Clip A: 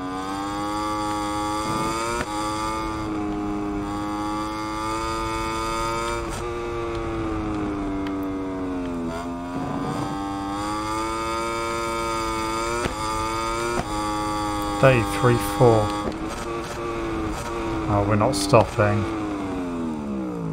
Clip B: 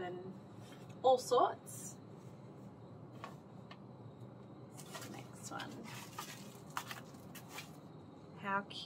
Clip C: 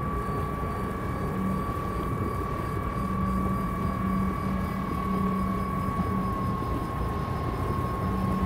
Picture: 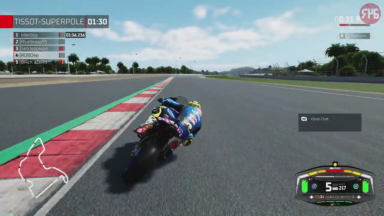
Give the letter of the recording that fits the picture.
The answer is A